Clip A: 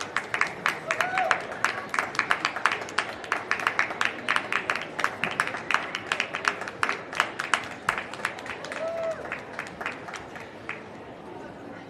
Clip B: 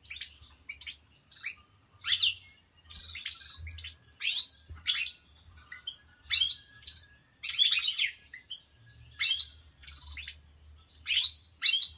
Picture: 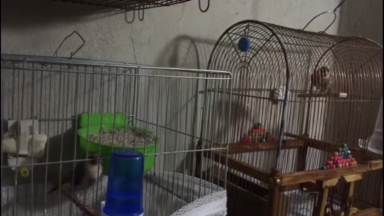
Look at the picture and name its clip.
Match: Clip B